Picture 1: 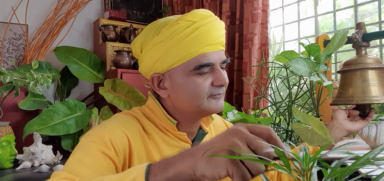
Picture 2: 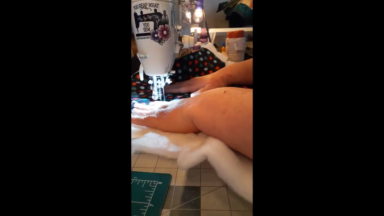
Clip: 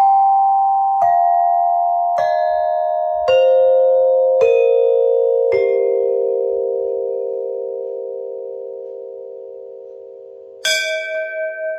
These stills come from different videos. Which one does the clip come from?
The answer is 1